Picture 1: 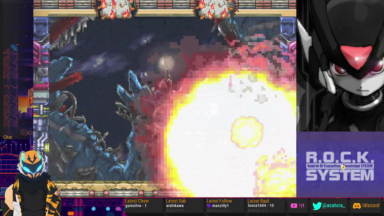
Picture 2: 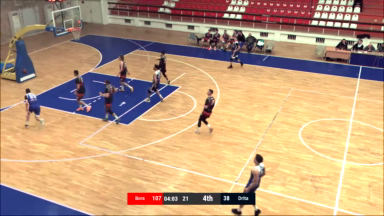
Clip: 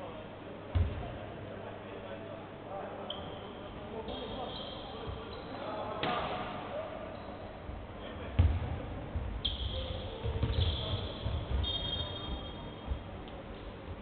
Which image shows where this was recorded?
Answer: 2